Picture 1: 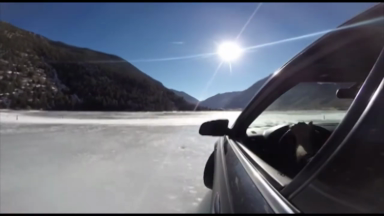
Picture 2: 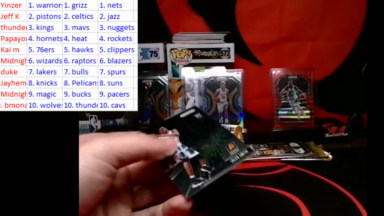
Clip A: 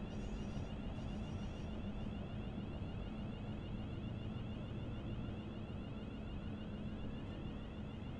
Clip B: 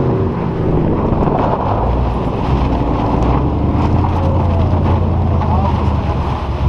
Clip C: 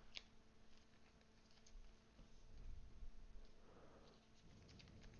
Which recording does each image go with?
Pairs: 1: B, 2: C